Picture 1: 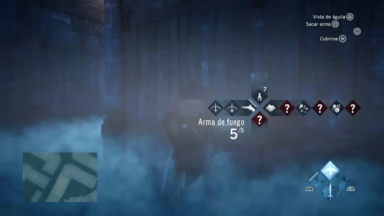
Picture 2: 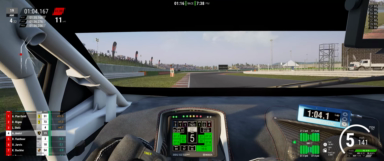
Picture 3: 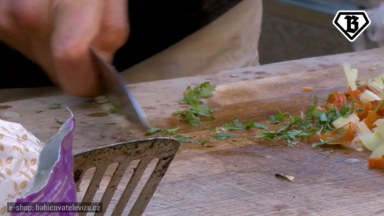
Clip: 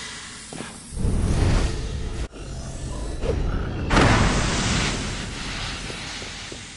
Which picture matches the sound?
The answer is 1